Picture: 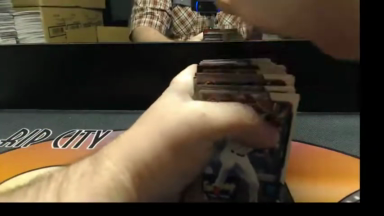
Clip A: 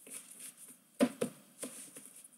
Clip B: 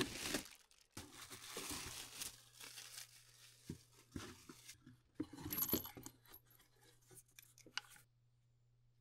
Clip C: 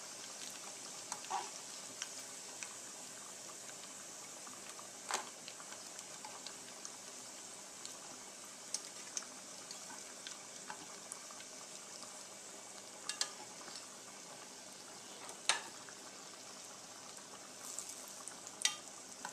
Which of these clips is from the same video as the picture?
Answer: A